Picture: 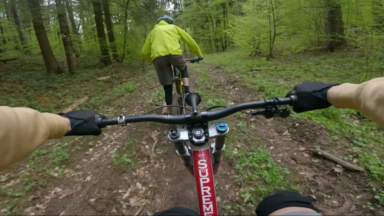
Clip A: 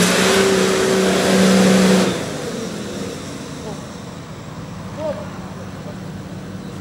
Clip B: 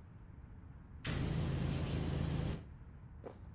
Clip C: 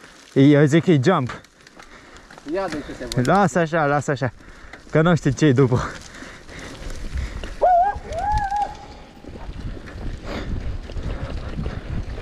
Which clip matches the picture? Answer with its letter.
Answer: C